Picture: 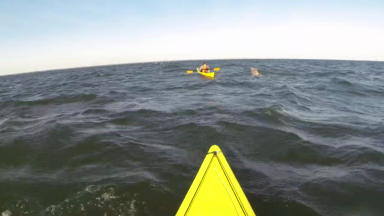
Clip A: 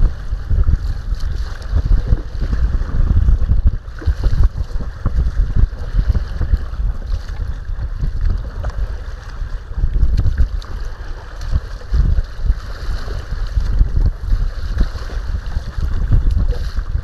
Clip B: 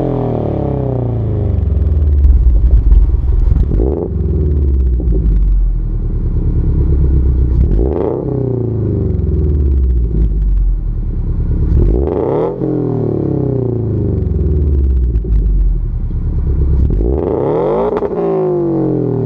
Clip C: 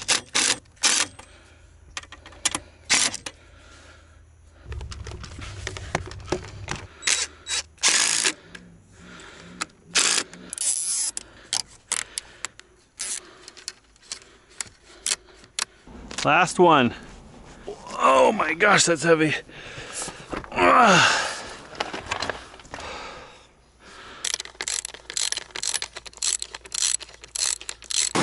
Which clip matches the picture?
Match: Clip A